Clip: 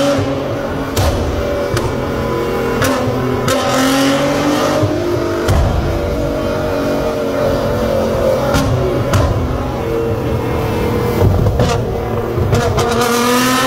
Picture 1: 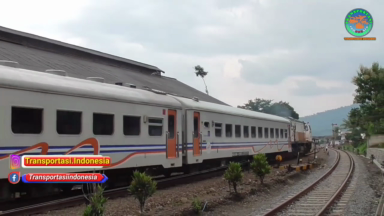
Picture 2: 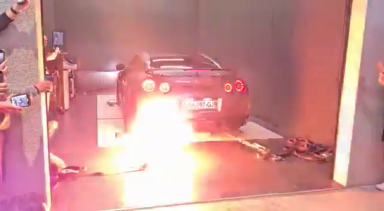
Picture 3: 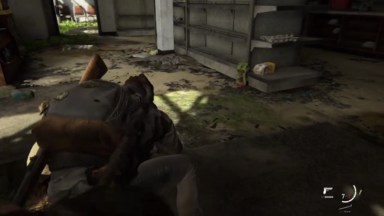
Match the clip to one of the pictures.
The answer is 2